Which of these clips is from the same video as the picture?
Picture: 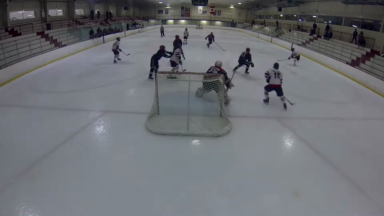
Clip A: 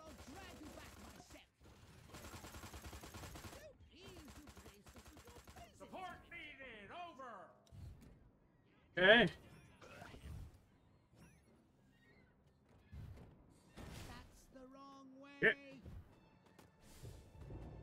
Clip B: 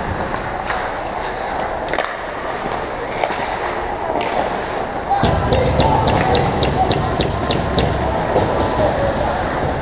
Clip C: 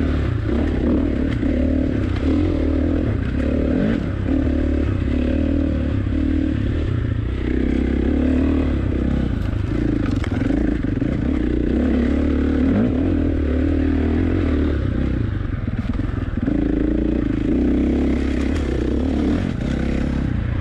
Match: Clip B